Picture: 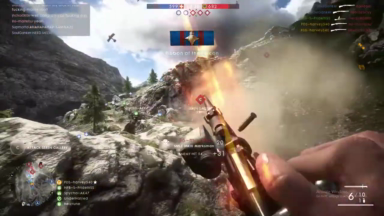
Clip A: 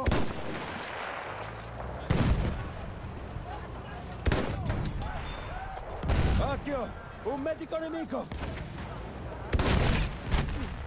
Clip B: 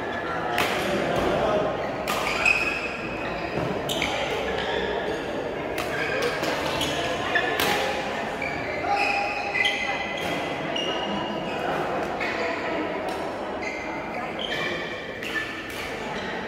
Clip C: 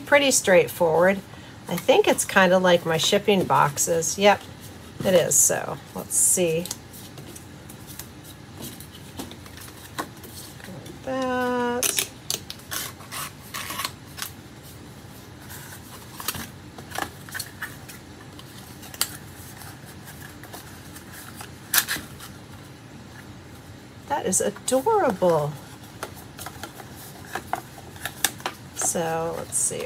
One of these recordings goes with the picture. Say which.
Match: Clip A